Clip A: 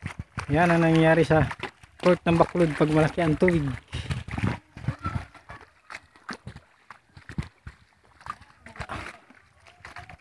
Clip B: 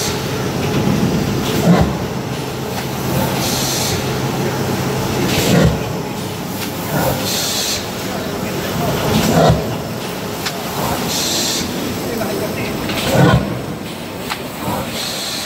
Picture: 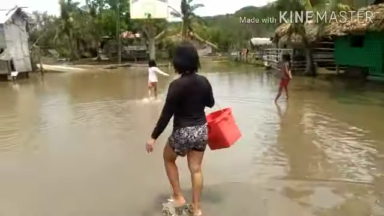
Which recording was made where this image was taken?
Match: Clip A